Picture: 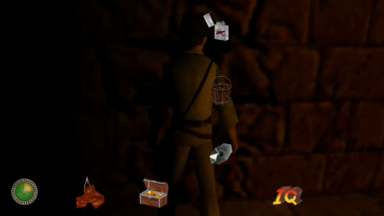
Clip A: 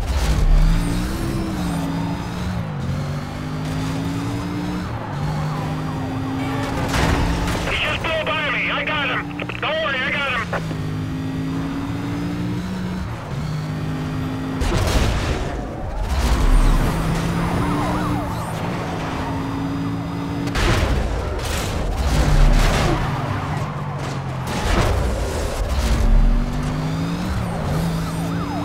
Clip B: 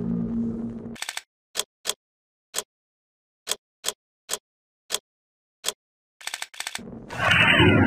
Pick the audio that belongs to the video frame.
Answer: B